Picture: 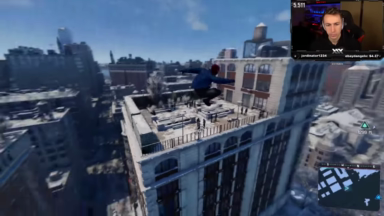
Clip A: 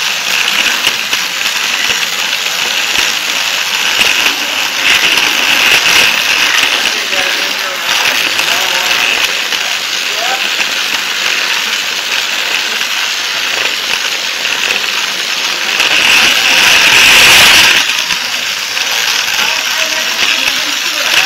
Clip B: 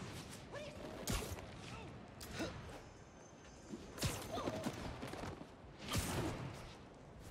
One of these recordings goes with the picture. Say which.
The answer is B